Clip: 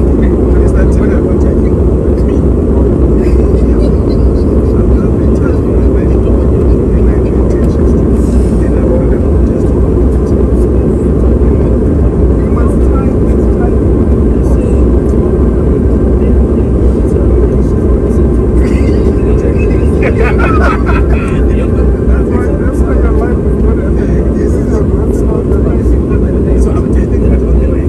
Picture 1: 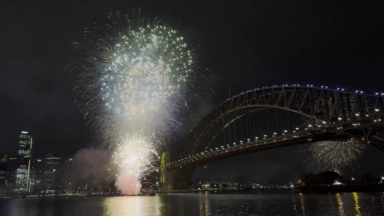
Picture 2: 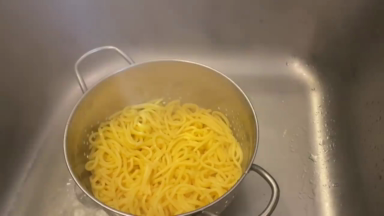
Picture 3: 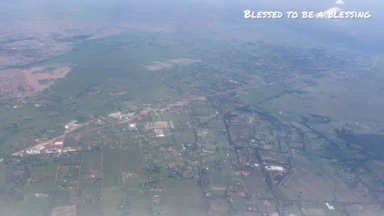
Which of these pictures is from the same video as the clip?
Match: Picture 3